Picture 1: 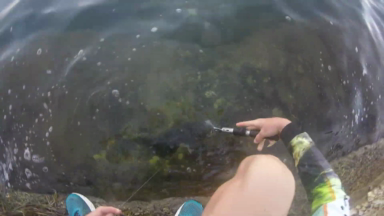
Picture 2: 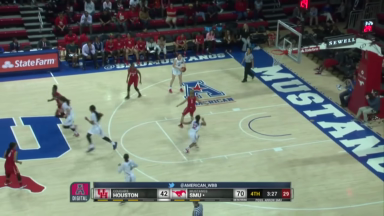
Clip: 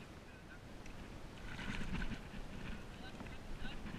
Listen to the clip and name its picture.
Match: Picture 1